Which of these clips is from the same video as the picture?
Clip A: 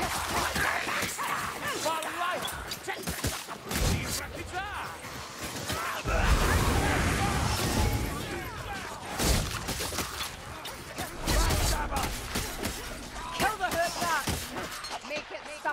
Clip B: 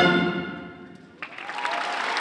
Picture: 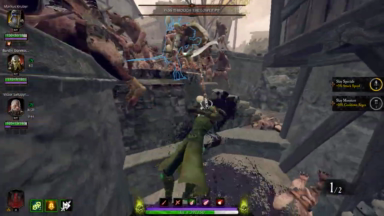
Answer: A